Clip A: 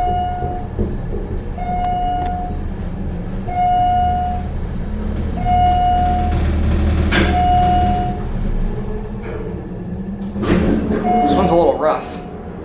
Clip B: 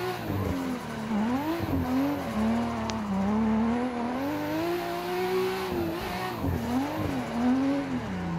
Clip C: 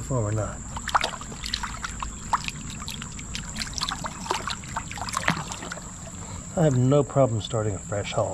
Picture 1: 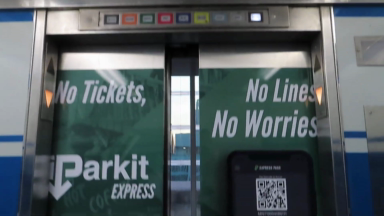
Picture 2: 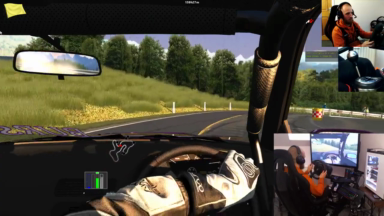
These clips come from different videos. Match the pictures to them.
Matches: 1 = A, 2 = B